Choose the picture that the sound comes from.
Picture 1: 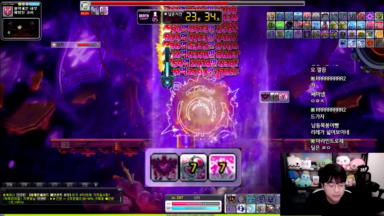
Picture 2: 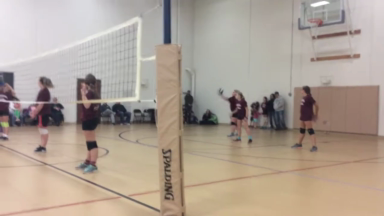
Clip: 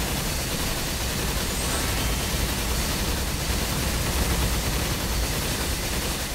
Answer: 1